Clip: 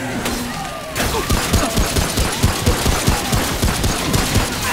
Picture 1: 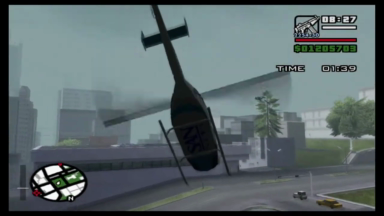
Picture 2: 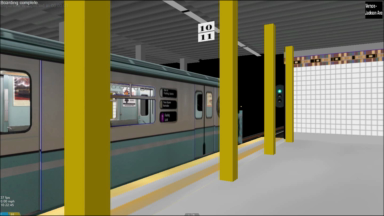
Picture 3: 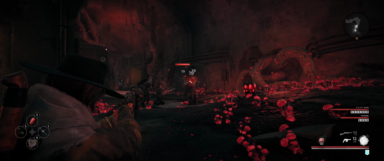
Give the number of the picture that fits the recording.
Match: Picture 3